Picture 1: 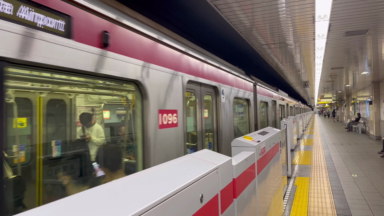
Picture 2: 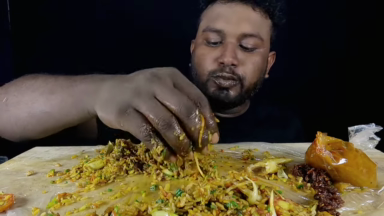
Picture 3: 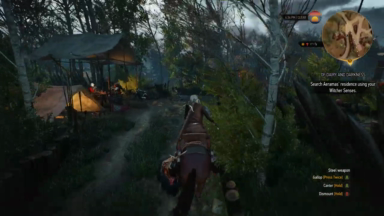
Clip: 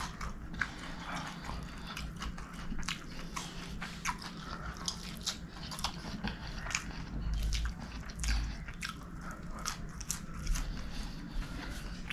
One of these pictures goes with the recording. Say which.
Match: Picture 2